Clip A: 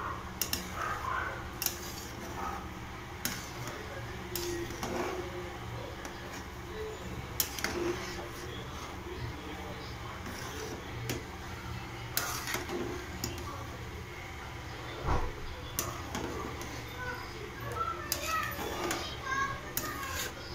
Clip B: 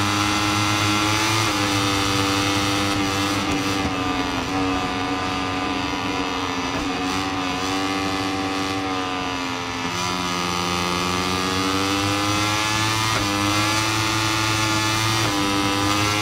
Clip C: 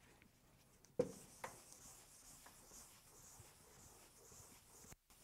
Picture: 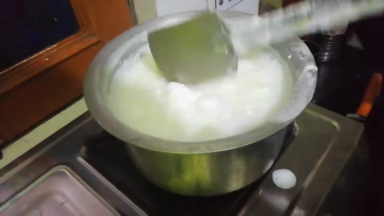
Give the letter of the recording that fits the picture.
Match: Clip A